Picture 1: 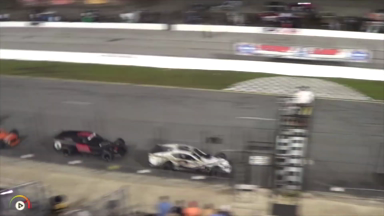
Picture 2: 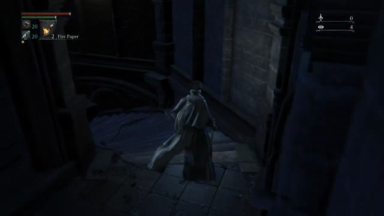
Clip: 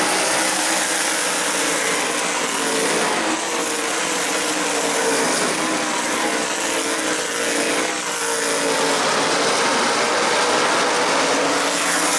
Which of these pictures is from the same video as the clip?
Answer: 1